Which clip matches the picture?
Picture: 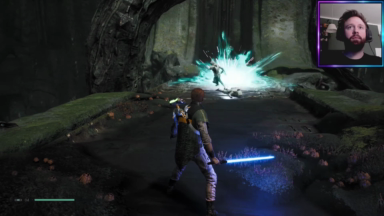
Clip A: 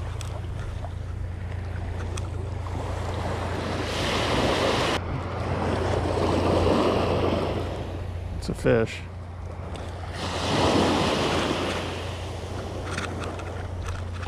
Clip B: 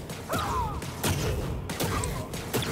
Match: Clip B